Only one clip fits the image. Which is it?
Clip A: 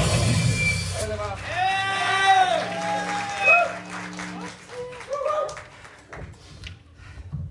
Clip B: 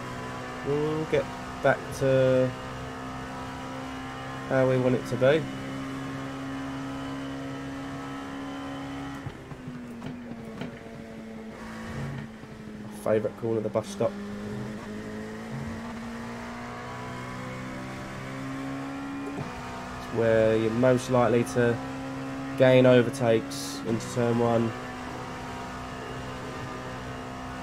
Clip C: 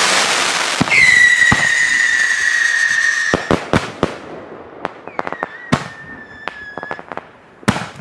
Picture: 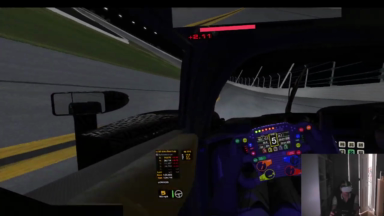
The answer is B